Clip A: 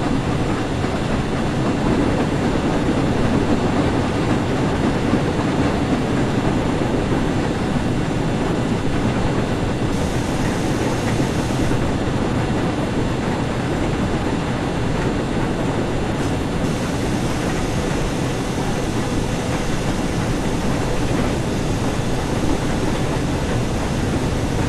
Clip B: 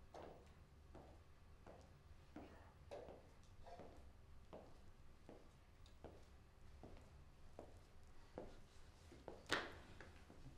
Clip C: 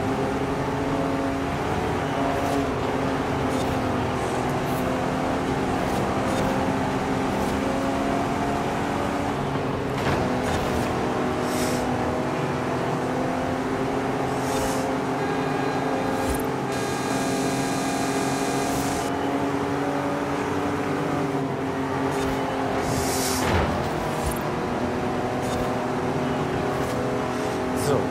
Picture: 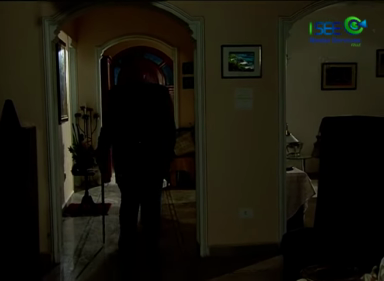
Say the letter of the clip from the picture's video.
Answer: B